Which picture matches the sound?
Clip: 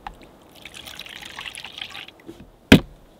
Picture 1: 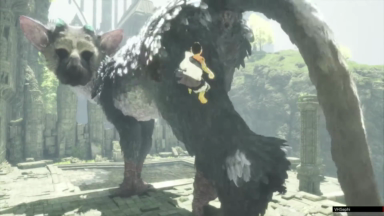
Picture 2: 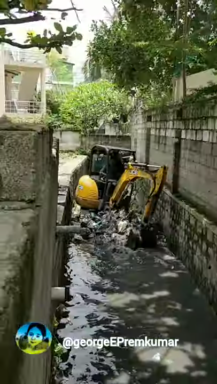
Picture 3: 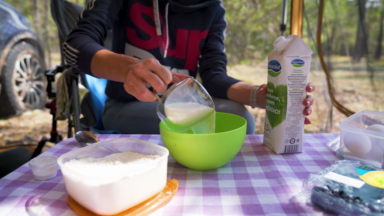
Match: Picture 3